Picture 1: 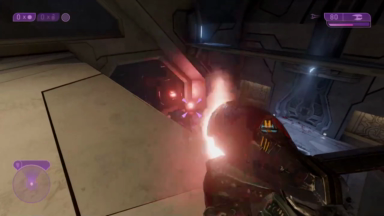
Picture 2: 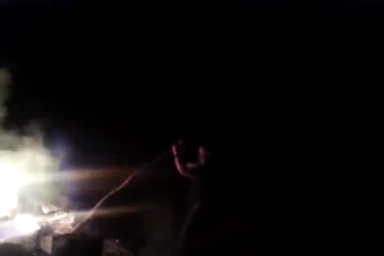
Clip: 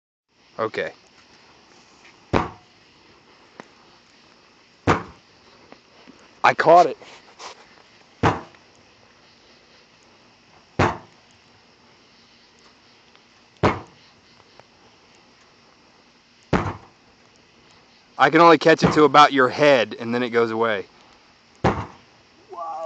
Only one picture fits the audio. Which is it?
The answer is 2